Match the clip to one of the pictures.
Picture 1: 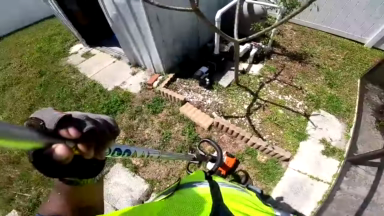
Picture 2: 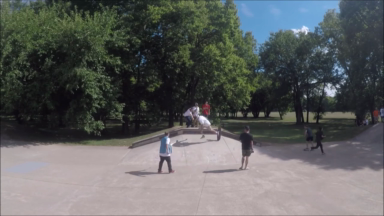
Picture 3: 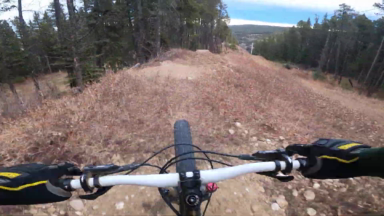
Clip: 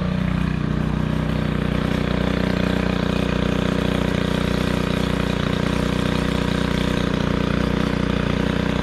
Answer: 1